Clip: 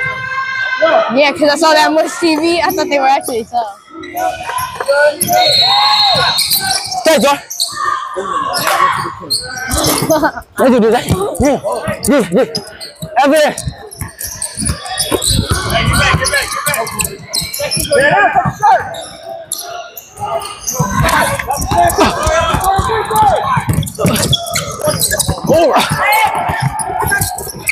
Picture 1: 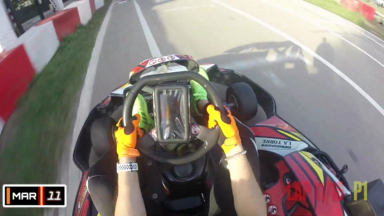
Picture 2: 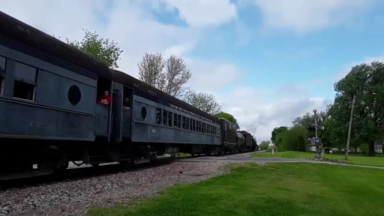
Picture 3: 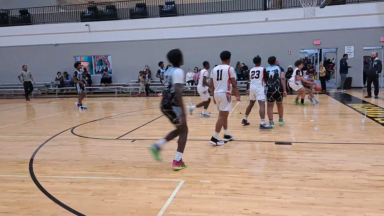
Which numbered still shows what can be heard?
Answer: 3